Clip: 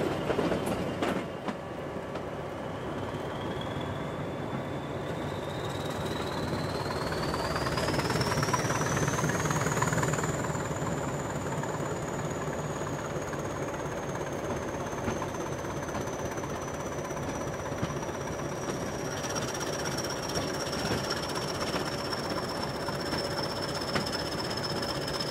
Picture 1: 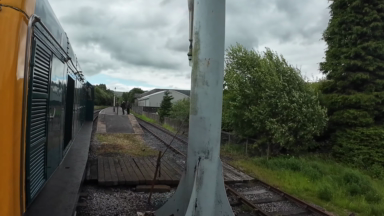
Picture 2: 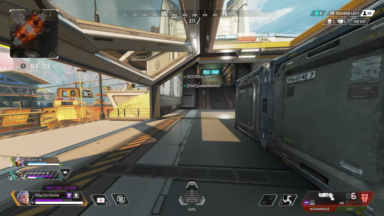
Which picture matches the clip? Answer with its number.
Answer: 1